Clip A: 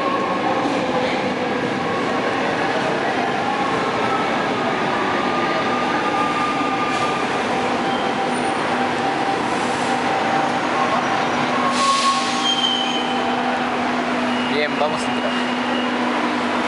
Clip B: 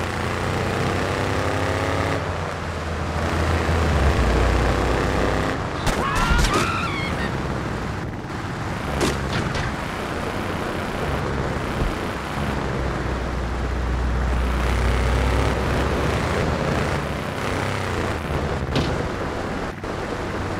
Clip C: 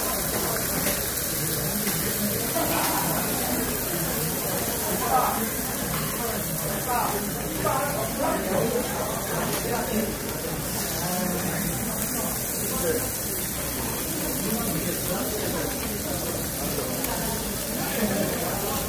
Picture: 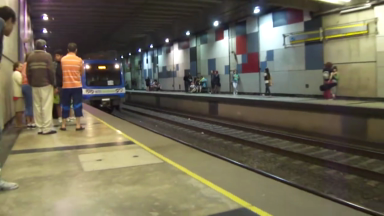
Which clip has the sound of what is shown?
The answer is A